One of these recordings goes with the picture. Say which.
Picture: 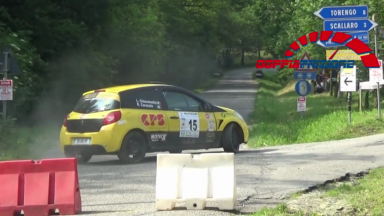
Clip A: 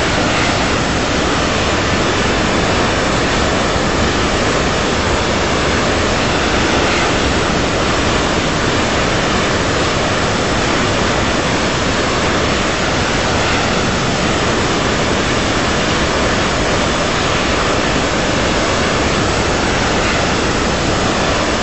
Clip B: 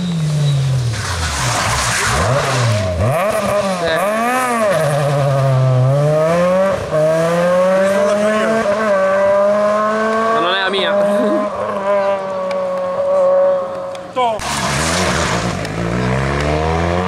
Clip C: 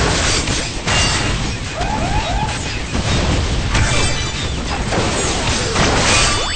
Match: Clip B